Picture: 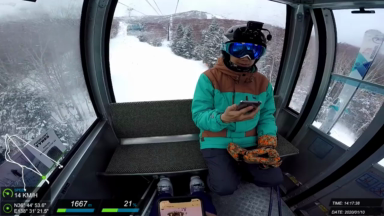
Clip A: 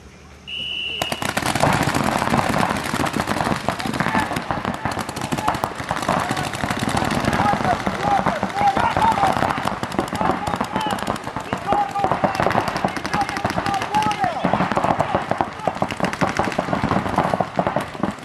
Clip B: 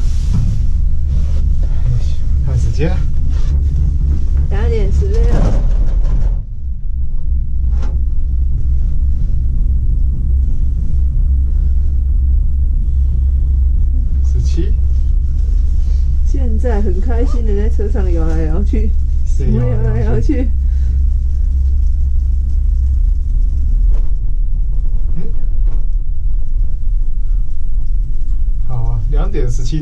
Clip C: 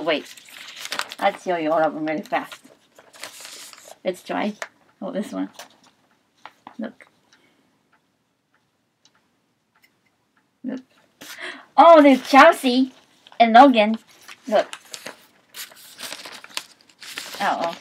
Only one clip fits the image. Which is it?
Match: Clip B